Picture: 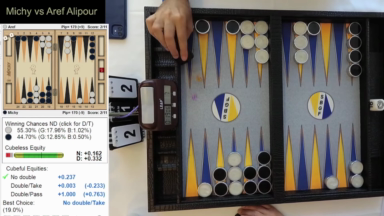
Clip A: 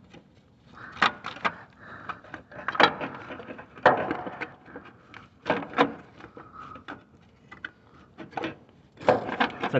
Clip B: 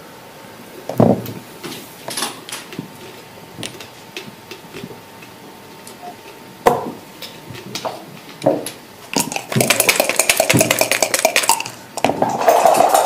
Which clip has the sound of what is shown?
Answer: B